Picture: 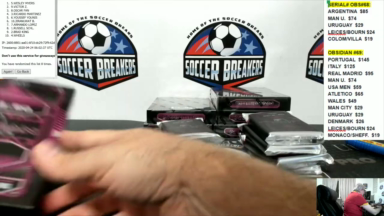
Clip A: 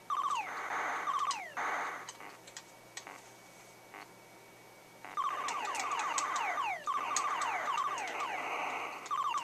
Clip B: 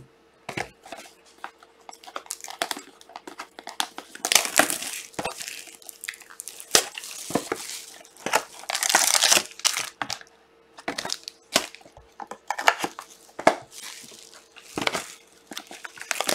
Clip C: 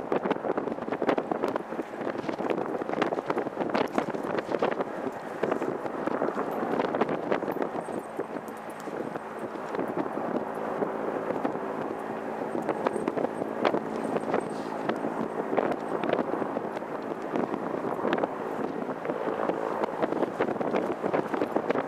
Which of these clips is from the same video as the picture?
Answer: B